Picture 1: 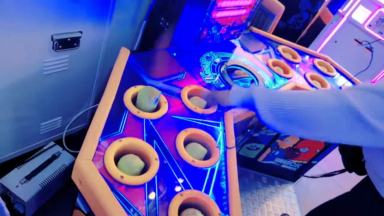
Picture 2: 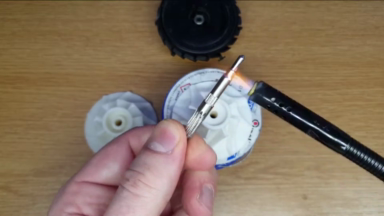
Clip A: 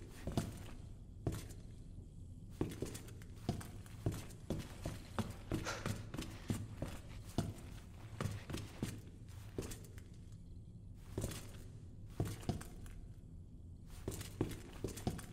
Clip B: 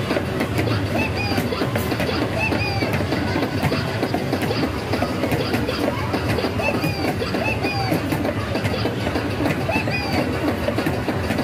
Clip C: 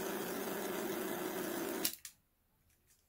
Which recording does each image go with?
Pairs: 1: B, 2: C